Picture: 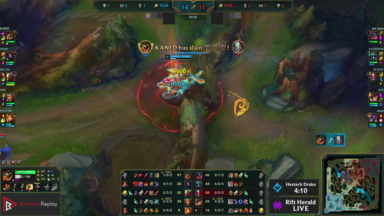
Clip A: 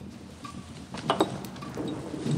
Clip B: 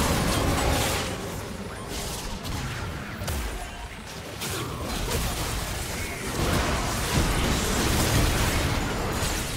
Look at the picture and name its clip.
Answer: B